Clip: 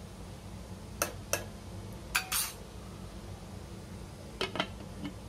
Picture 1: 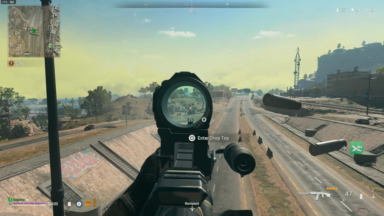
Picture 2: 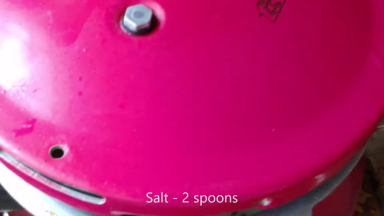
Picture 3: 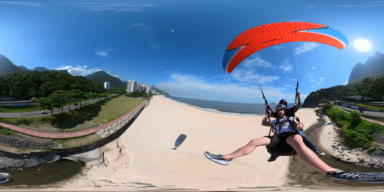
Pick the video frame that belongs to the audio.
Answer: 2